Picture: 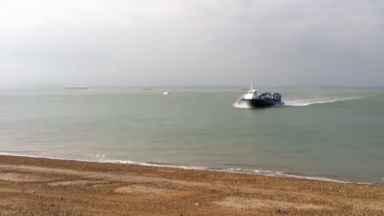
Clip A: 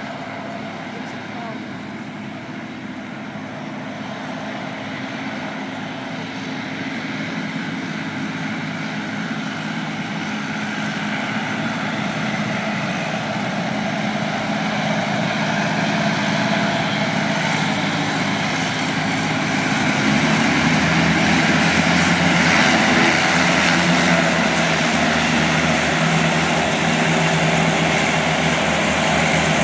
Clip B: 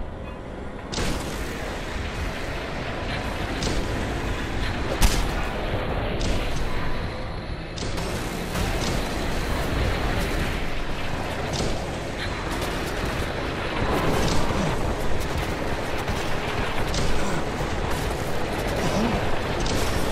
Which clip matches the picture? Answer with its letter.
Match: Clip A